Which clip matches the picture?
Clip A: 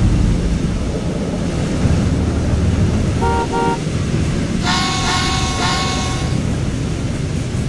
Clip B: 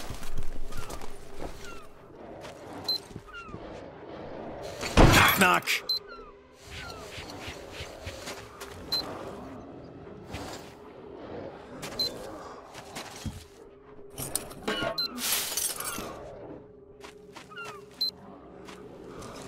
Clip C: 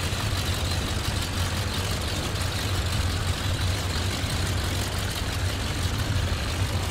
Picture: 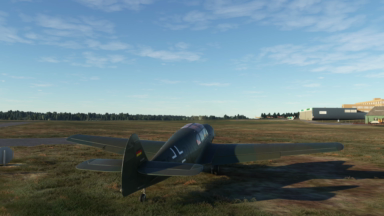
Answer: C